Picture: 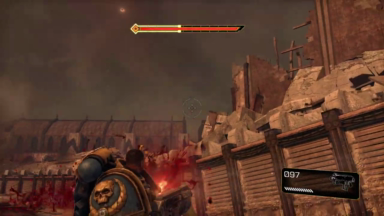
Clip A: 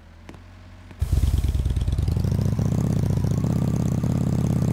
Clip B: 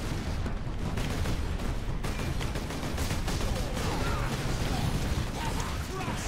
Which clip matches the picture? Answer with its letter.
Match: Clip B